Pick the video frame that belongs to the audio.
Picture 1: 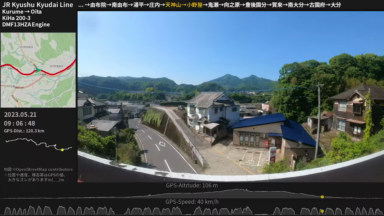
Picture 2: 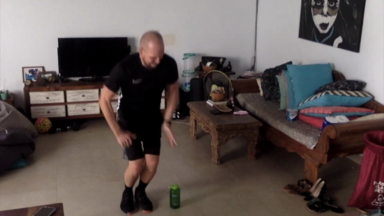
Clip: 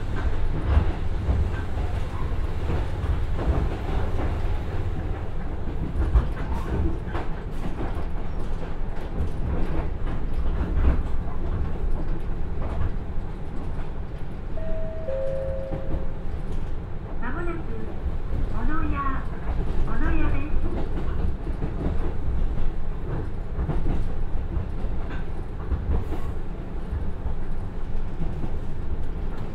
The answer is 1